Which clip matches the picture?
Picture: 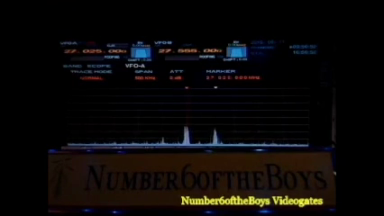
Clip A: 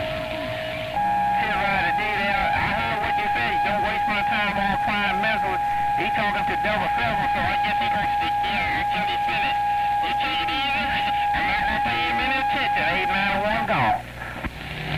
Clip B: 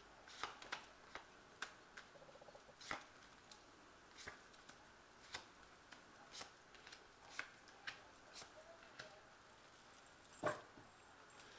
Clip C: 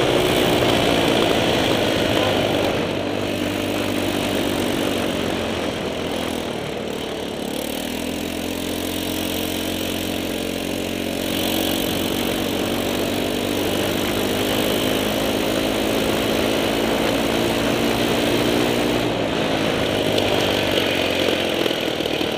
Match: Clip A